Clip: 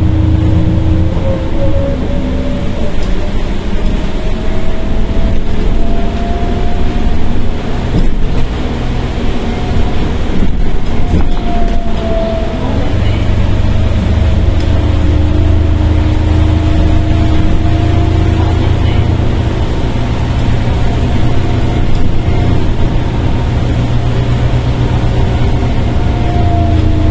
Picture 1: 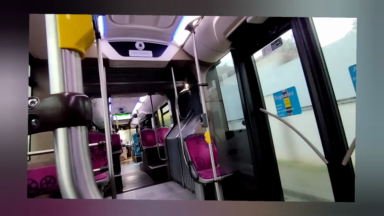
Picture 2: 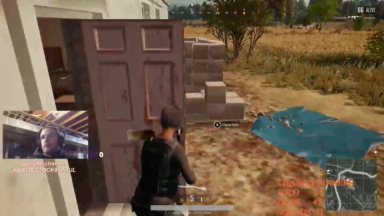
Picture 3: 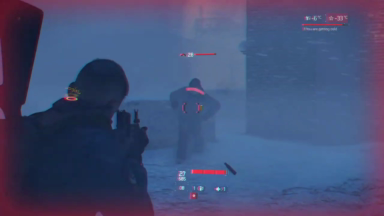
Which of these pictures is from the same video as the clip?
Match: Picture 1